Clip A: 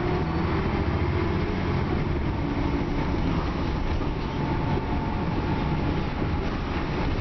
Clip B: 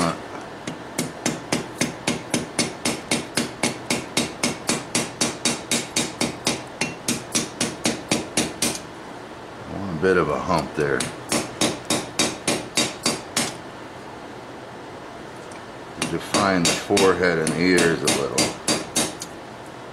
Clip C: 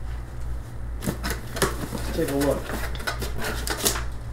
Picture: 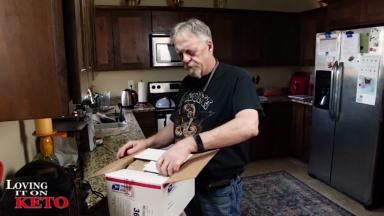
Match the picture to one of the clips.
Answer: C